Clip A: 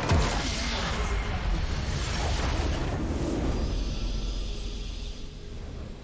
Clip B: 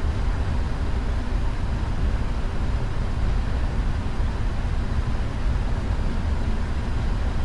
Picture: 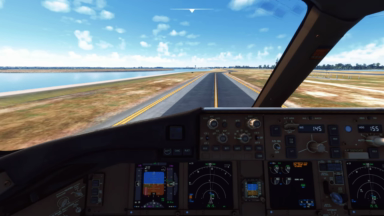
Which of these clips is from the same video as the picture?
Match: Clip B